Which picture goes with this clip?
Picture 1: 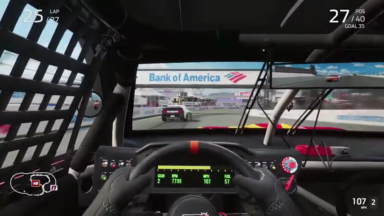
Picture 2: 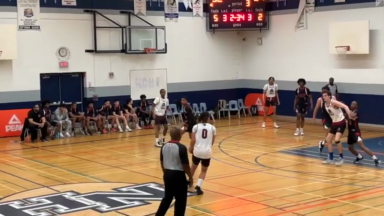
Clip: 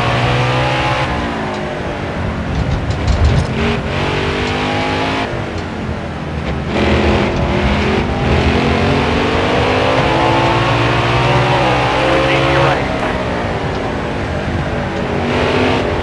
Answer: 1